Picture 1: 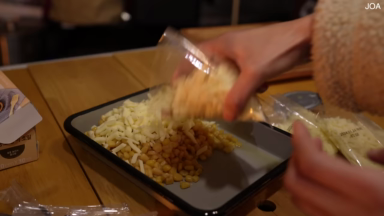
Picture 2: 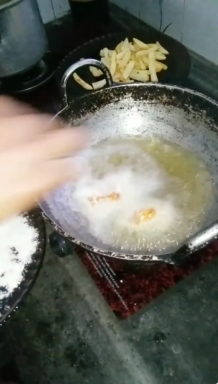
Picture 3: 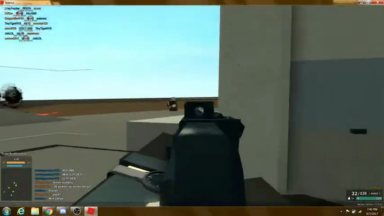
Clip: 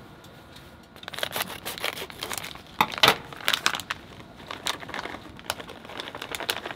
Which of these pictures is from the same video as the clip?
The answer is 1